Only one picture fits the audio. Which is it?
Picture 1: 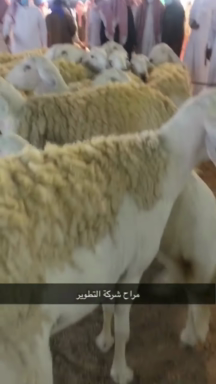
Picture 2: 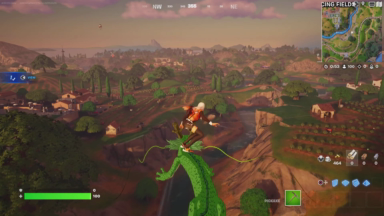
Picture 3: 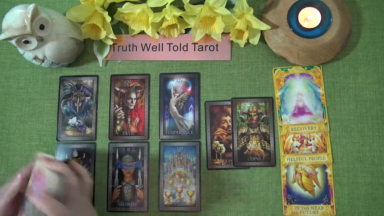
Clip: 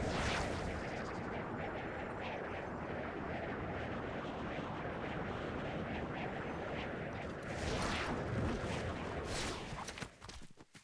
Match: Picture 2